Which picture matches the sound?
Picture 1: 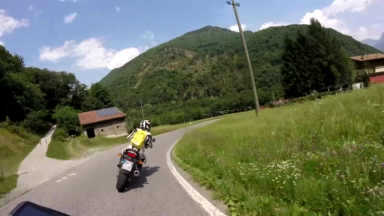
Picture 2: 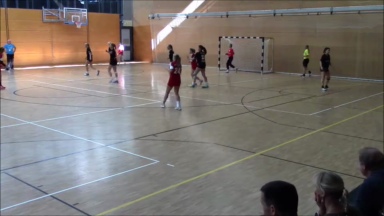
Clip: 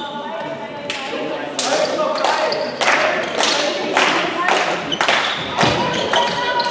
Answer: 2